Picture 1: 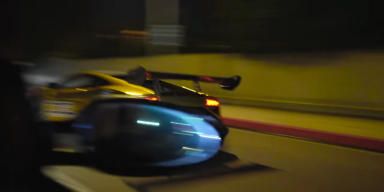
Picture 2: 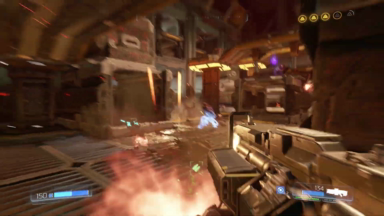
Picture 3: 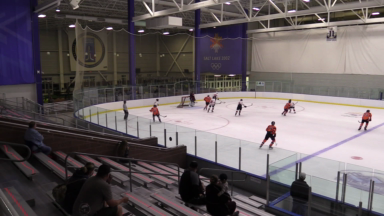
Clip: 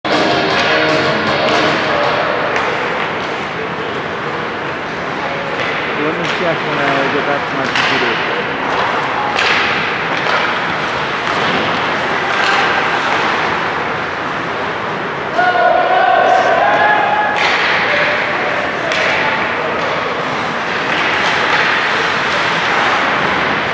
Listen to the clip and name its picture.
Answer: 3